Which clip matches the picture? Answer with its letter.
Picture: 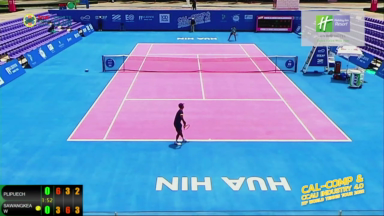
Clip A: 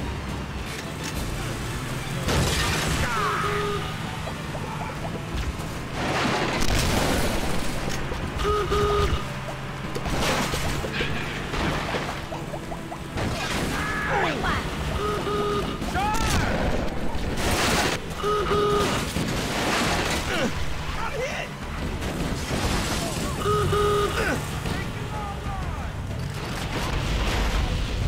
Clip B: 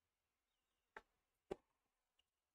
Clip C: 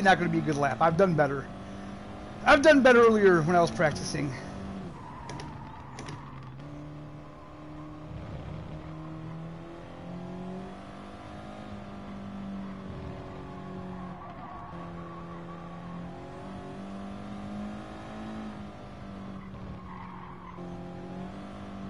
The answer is B